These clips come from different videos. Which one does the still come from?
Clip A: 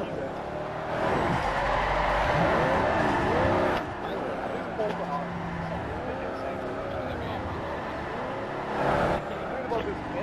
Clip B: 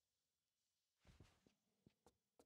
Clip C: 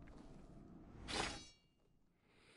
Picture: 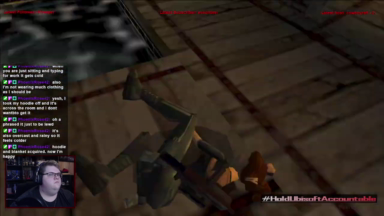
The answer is B